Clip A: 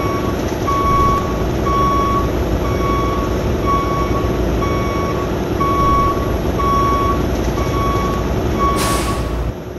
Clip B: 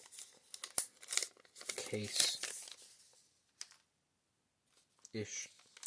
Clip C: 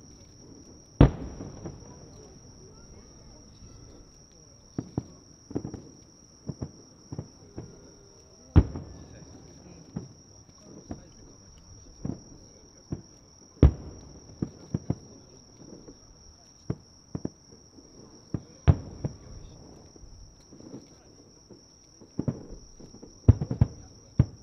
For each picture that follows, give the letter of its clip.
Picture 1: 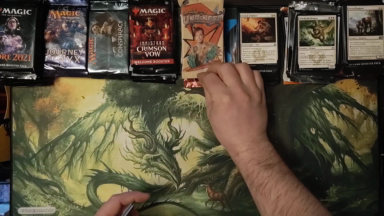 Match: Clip B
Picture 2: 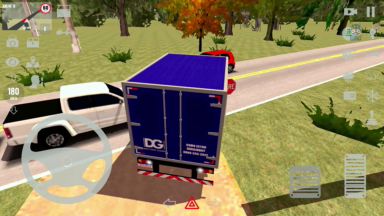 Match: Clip A